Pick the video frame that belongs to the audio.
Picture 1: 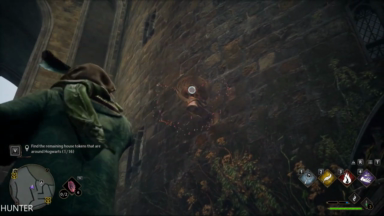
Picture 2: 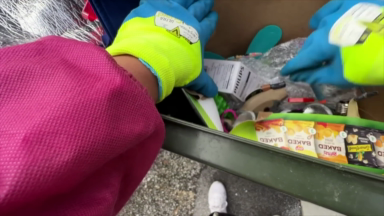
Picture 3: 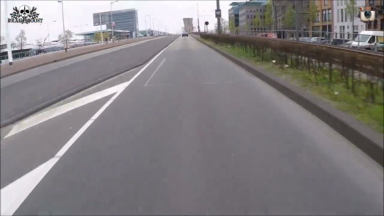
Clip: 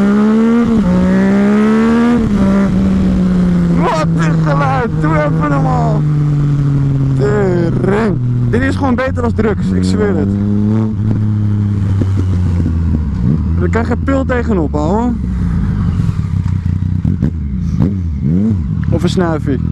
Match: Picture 3